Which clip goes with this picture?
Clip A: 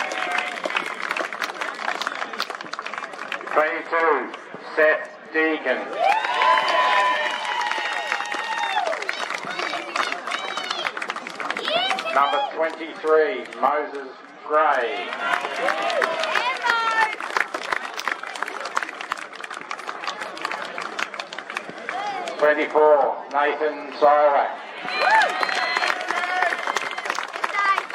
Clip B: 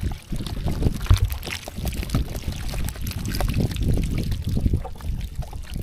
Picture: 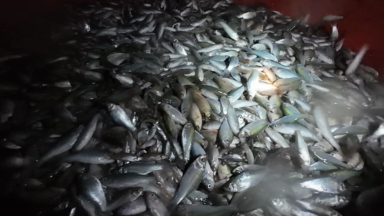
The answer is B